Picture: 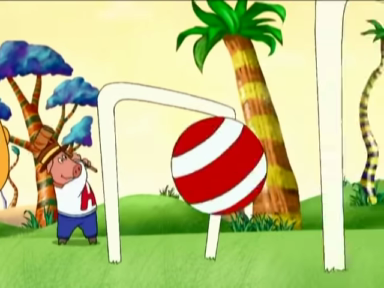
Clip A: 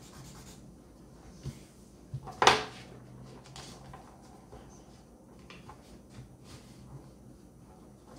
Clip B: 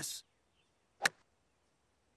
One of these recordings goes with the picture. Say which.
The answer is B